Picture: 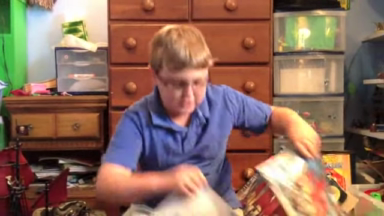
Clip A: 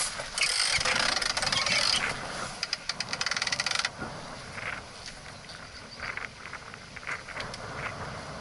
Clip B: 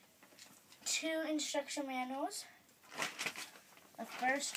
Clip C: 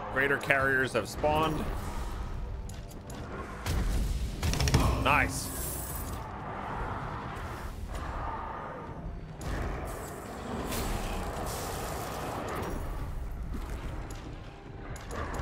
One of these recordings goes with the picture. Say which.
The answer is B